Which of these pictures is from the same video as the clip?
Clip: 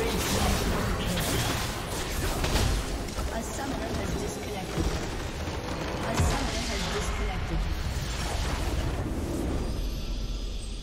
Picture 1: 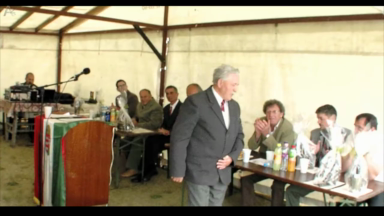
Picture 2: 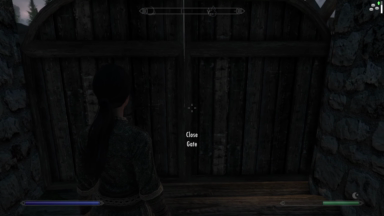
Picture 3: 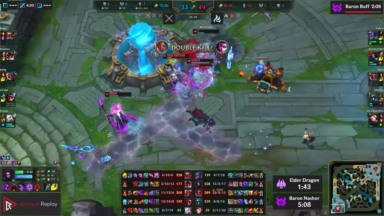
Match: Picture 3